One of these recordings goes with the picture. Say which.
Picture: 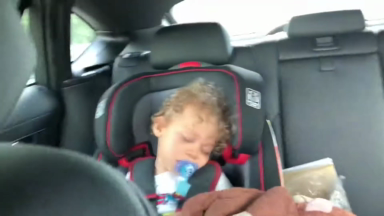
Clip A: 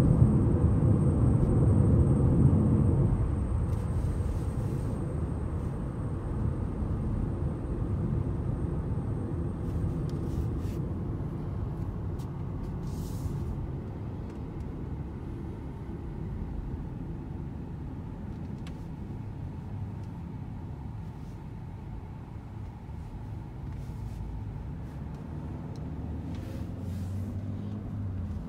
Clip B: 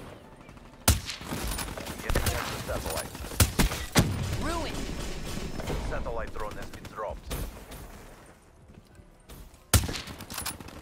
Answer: A